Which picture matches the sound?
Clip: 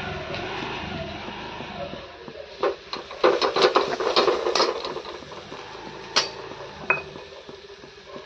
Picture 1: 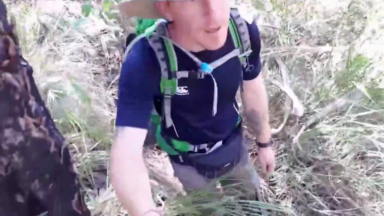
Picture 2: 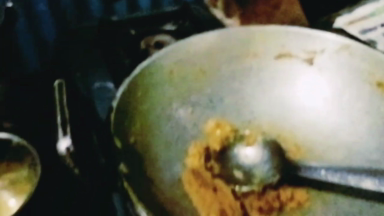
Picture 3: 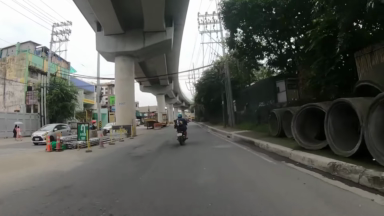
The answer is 2